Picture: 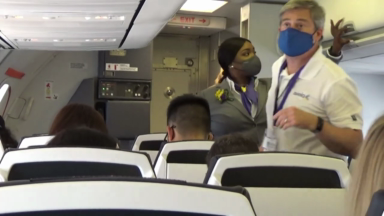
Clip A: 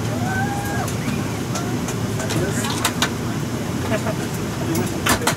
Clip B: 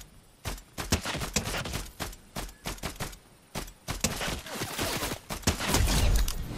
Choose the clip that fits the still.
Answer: A